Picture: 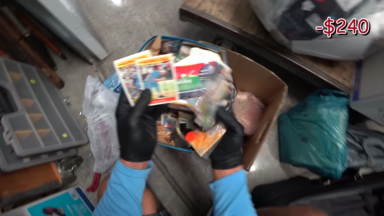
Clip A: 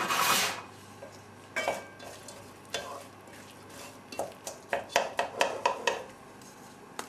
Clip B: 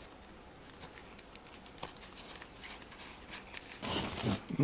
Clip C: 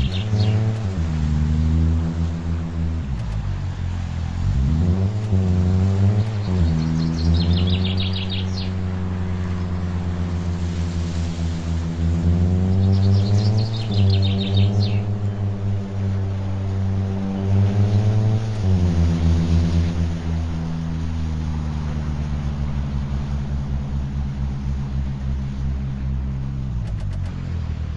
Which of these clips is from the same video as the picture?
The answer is B